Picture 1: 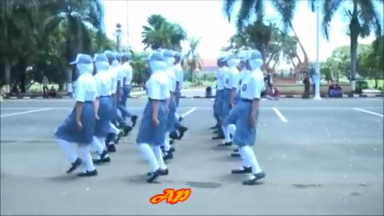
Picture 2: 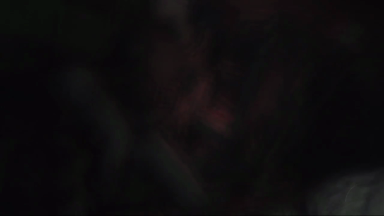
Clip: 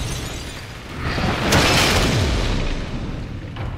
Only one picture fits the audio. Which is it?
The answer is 2